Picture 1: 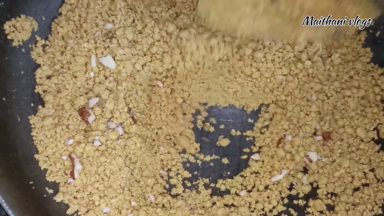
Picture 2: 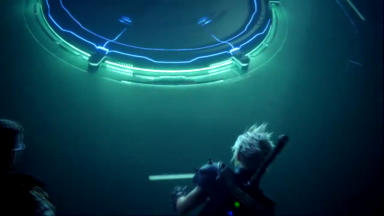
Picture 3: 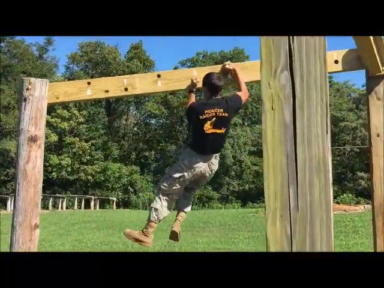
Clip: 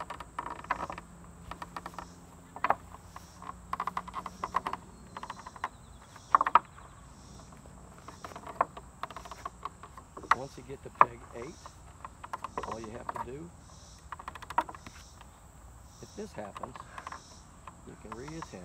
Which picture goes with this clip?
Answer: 3